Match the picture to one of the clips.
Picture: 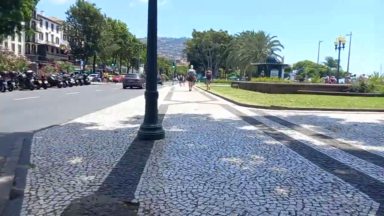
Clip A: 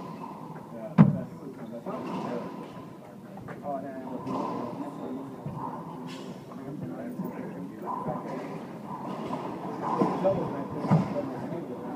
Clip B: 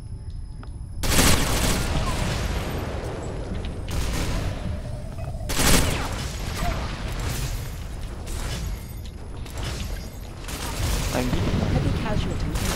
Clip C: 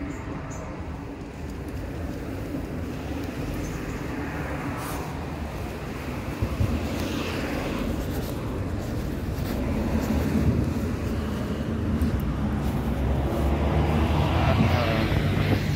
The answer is C